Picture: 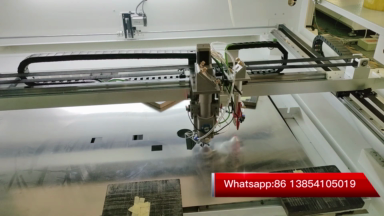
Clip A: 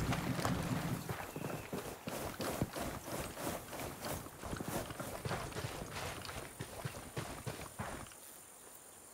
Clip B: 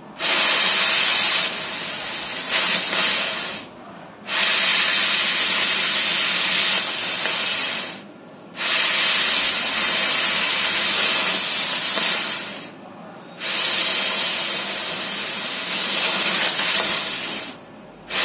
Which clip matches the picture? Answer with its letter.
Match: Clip B